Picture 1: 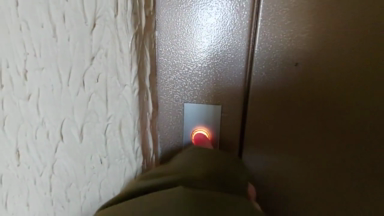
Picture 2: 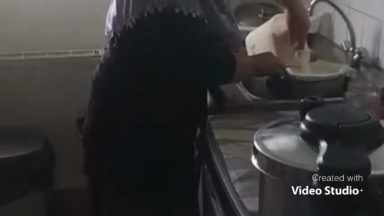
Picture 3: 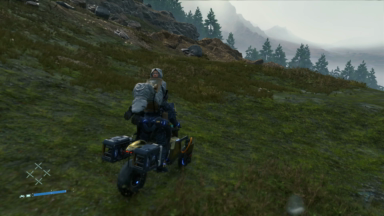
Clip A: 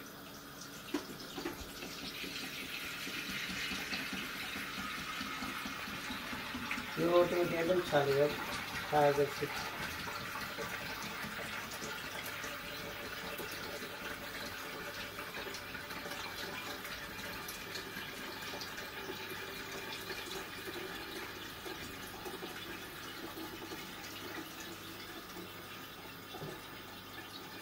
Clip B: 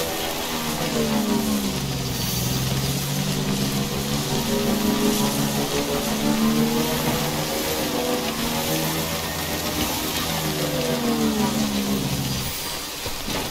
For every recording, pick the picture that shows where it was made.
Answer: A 2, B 3